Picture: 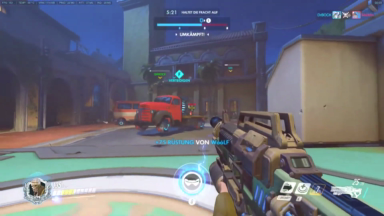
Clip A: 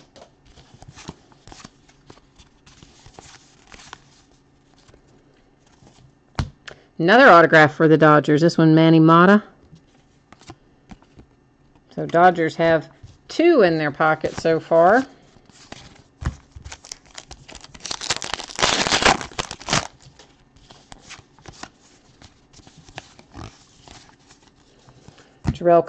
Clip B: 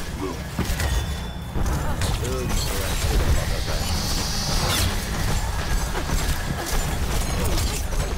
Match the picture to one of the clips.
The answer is B